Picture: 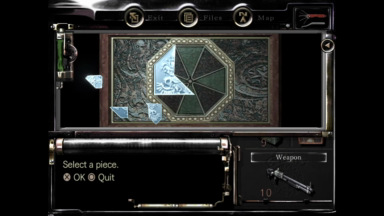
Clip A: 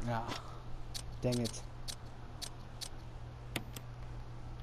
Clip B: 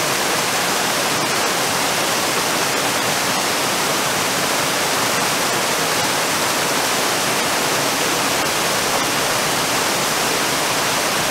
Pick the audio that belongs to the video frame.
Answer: A